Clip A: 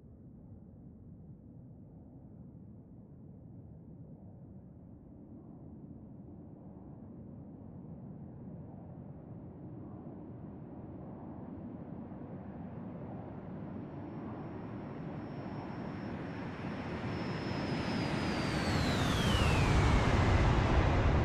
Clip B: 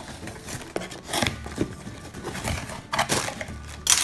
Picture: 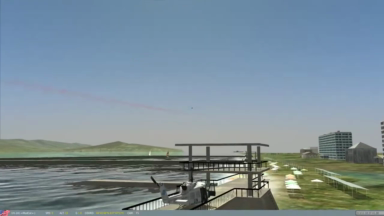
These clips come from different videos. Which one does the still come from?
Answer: A